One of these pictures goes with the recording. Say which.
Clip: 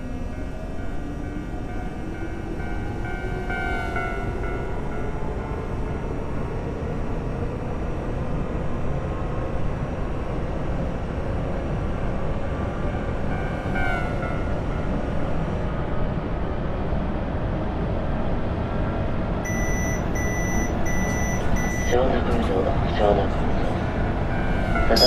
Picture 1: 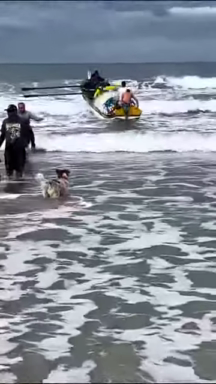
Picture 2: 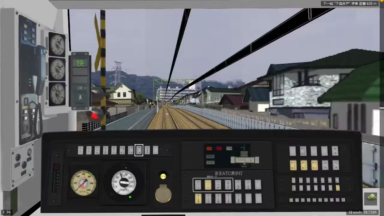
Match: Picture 2